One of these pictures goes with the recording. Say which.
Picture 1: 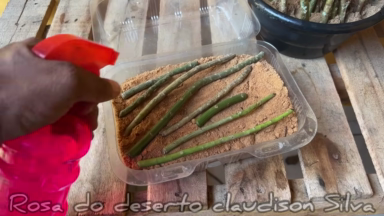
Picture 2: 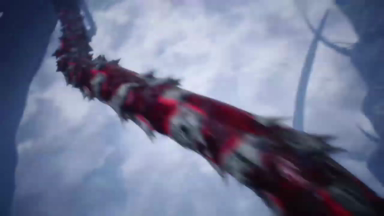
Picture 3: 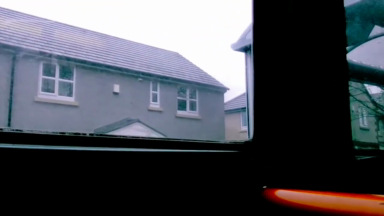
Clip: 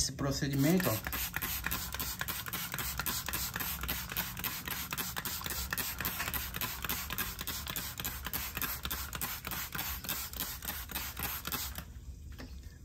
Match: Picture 1